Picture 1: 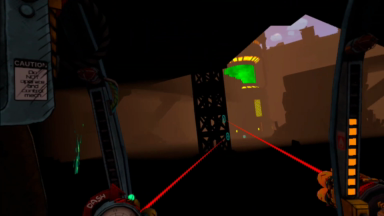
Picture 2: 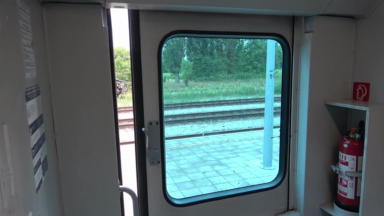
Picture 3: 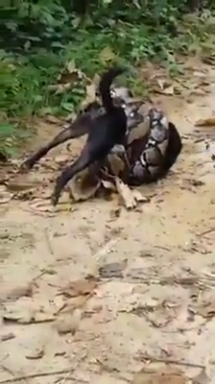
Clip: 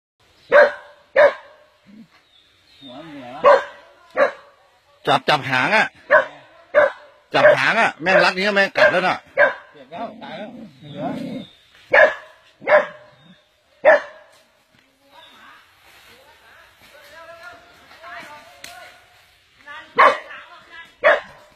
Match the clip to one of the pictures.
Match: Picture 3